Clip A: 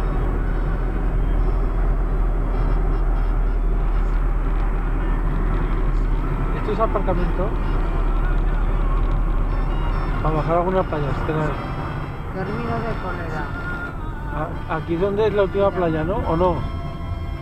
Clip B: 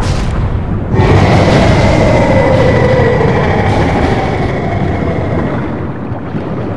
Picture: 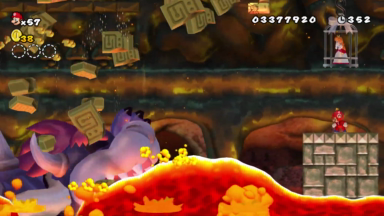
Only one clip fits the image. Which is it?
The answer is B